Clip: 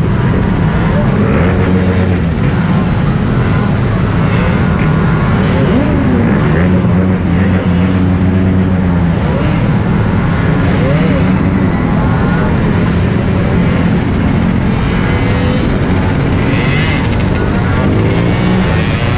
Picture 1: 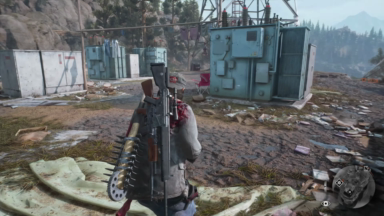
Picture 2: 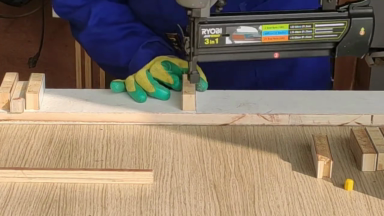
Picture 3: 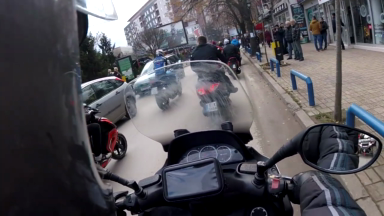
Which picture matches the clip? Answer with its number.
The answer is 3